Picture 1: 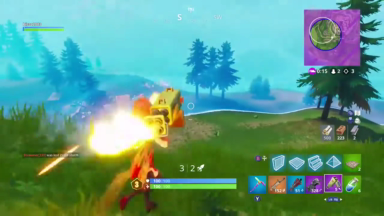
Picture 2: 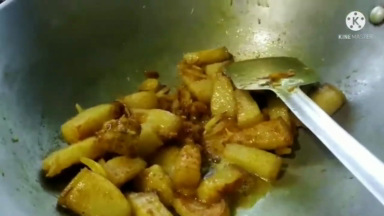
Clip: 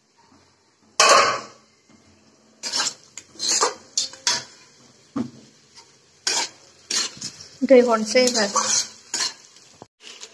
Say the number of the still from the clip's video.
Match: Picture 2